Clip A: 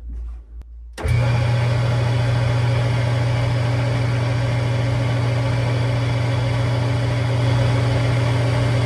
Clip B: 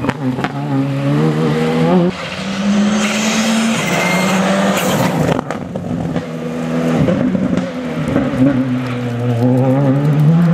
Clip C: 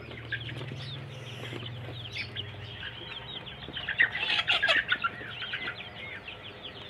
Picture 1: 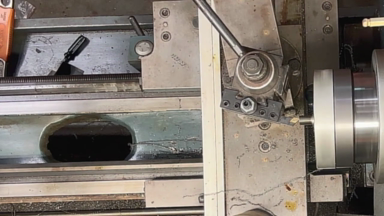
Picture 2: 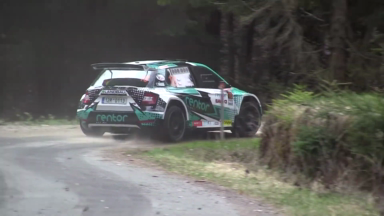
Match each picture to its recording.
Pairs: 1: A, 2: B